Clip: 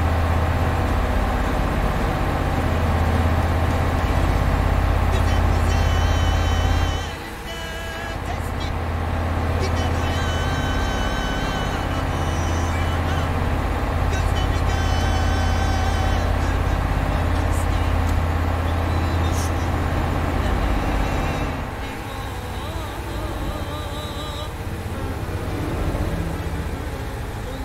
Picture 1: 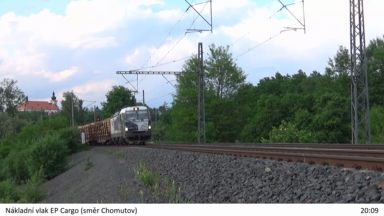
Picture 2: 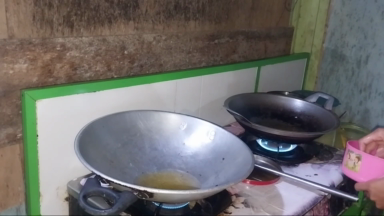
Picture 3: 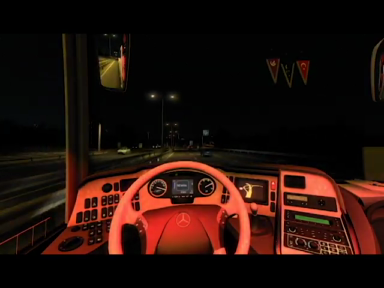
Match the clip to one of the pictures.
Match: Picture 3